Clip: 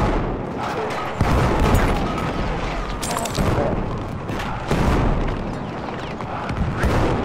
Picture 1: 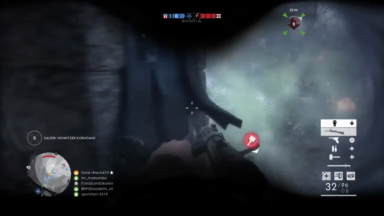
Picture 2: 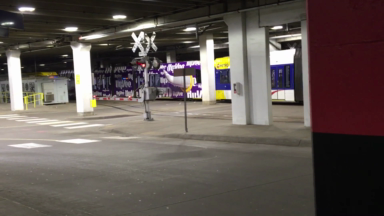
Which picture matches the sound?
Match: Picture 1